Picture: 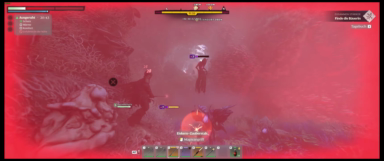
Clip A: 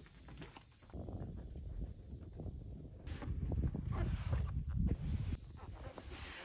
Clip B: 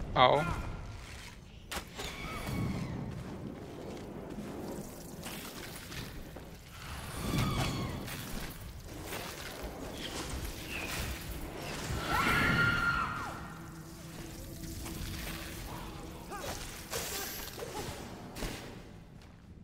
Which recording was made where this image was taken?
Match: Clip B